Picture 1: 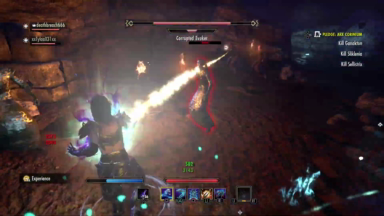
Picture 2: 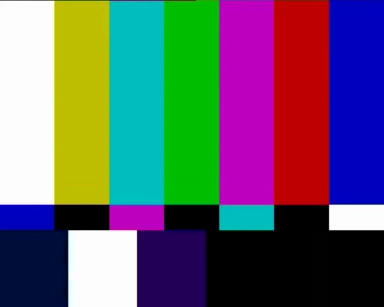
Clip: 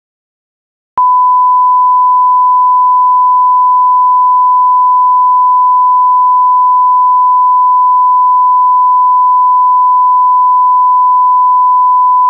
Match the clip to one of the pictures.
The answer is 2